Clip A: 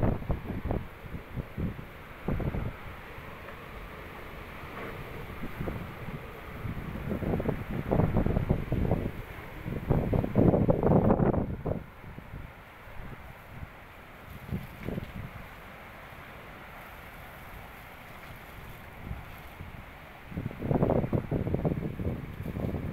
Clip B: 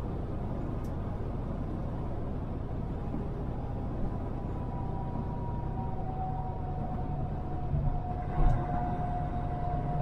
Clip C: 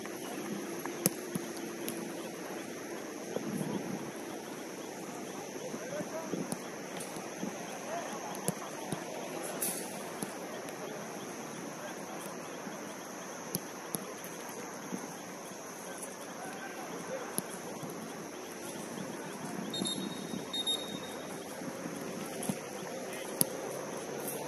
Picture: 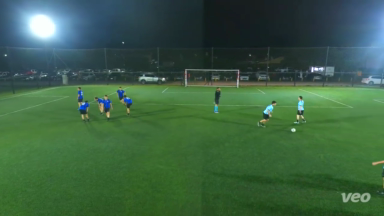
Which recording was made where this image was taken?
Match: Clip C